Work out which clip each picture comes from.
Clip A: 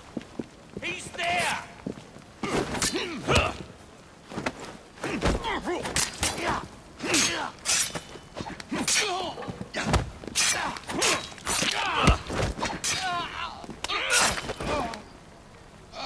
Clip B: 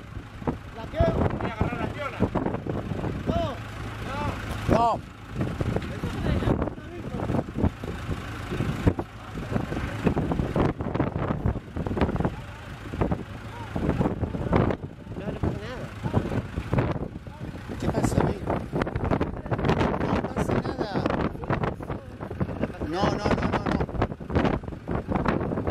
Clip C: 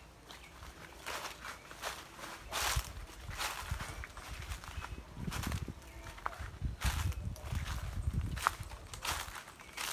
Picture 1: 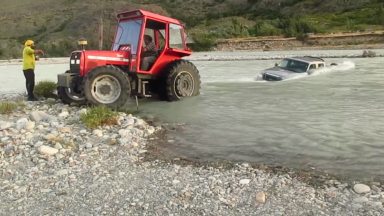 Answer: B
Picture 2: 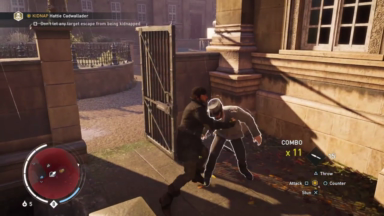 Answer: A